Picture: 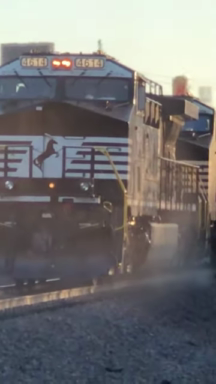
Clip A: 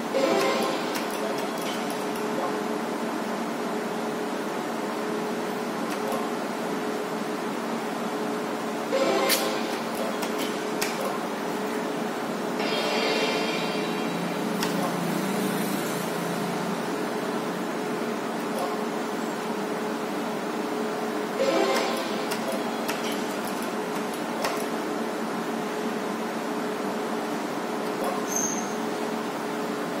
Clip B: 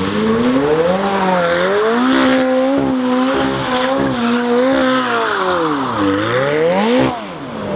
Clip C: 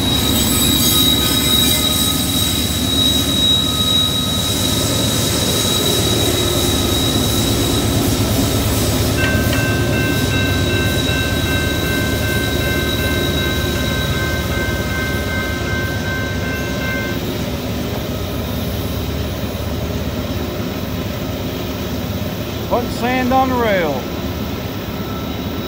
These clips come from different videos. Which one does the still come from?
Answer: C